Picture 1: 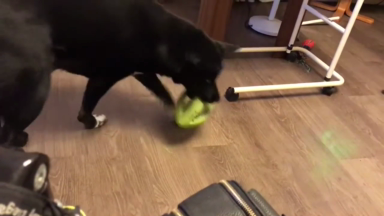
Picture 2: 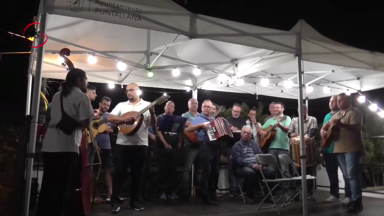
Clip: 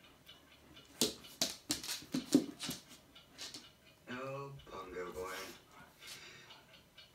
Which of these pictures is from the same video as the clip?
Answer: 1